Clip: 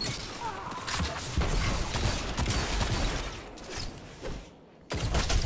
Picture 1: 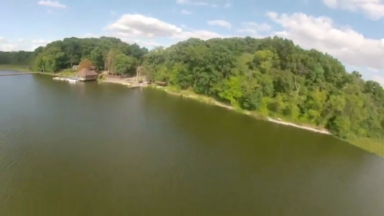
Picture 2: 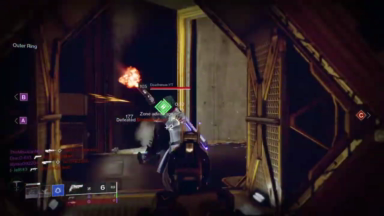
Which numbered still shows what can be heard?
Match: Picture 2